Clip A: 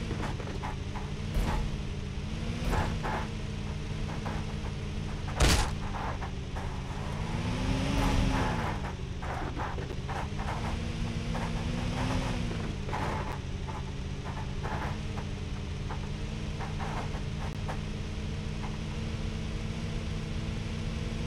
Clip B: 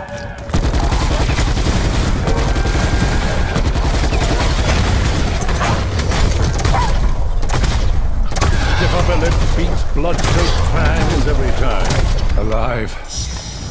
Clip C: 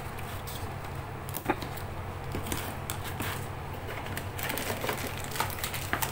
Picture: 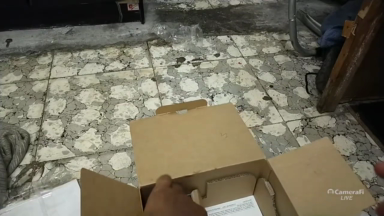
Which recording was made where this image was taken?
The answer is C